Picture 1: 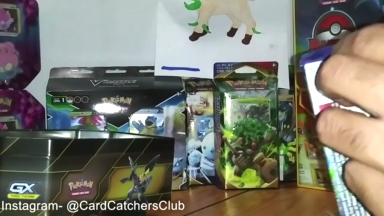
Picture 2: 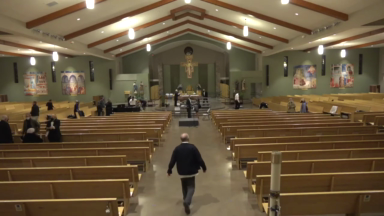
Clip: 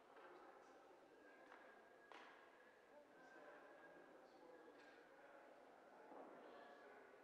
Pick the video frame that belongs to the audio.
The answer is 2